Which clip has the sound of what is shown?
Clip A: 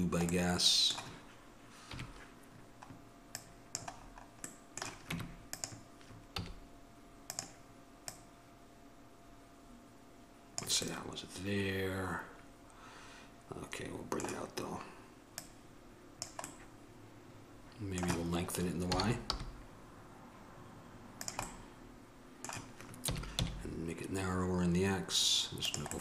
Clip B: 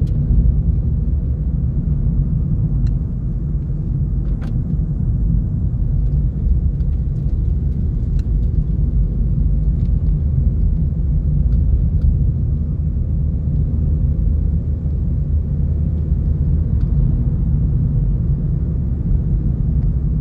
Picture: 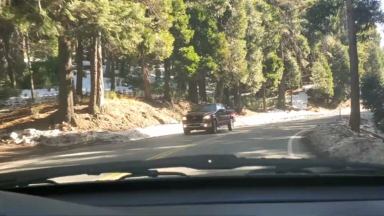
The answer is B